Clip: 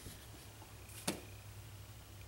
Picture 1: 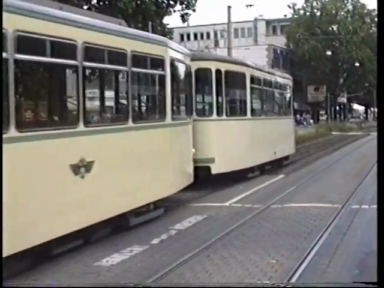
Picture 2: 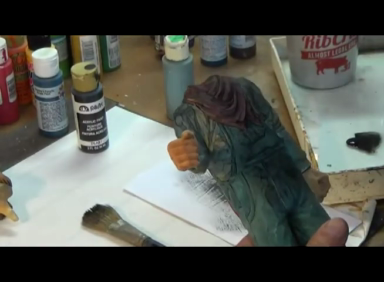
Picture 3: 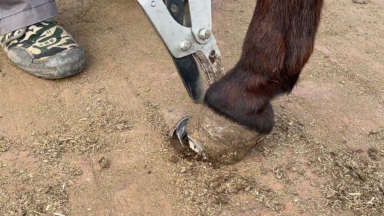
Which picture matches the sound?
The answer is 2